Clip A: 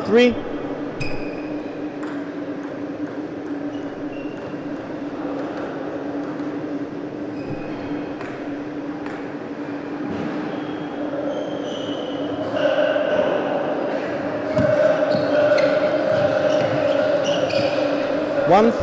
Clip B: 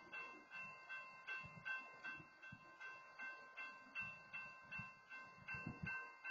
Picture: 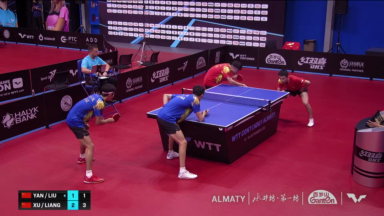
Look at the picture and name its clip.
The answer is A